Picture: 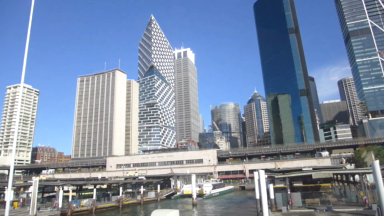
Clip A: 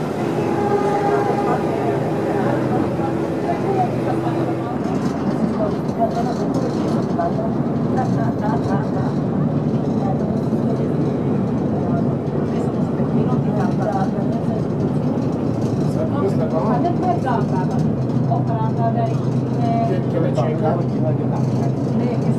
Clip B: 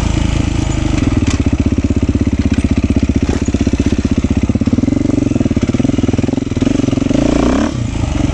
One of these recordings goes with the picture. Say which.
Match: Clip A